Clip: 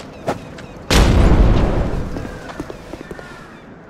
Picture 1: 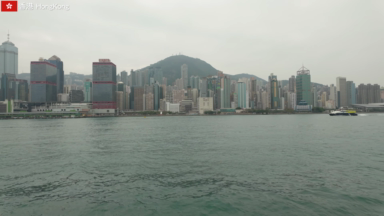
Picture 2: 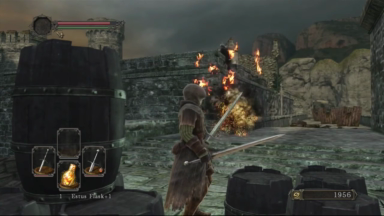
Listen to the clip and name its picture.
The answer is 2